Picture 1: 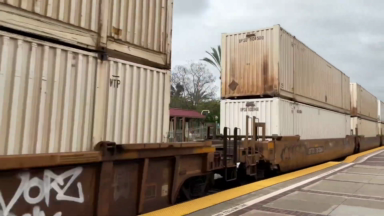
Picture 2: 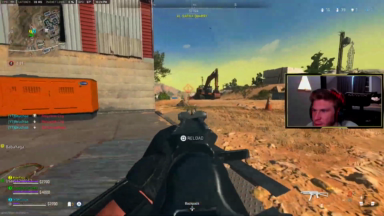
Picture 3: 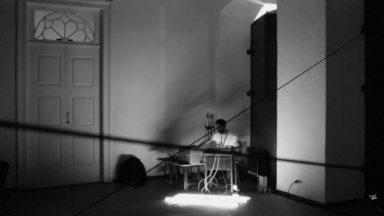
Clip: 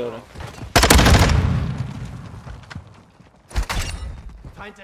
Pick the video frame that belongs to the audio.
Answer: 2